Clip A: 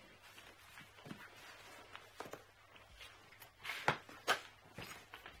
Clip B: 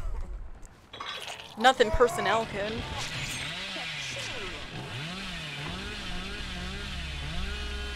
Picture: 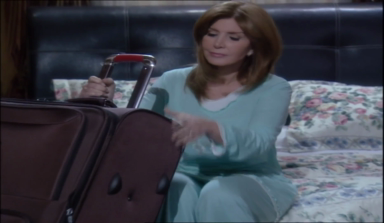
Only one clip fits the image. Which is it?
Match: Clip A